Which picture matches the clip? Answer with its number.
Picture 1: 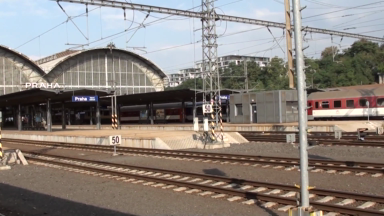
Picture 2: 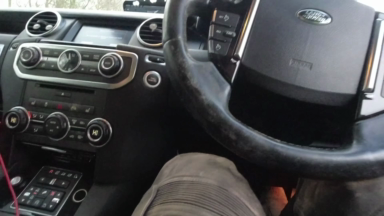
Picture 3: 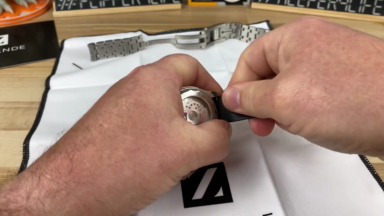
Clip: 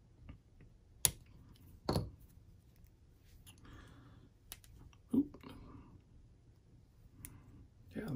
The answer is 3